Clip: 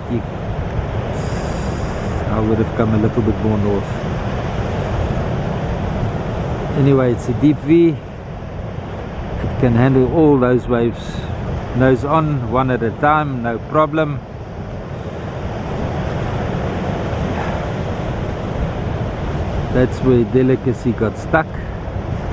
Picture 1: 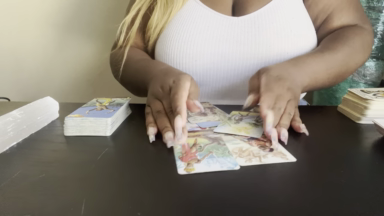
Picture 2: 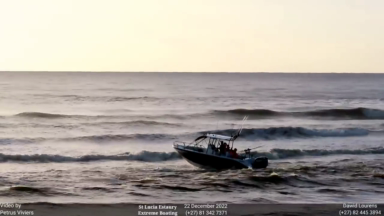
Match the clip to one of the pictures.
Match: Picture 2